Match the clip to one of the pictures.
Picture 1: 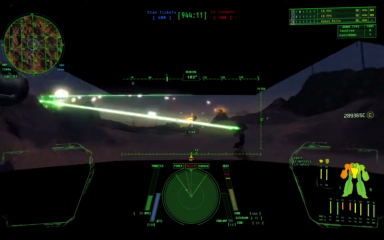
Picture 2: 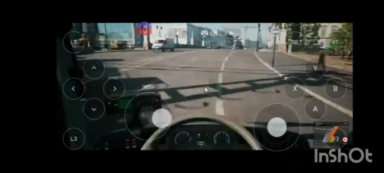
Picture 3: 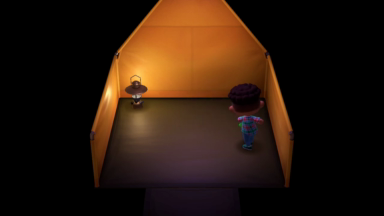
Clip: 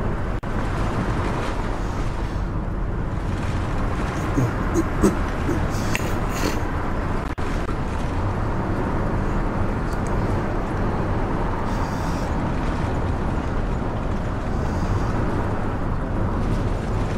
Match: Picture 2